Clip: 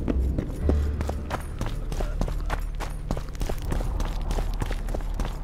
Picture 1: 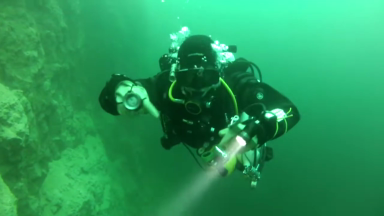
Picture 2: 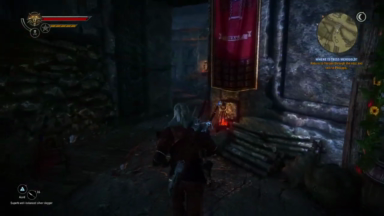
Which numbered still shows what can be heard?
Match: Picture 2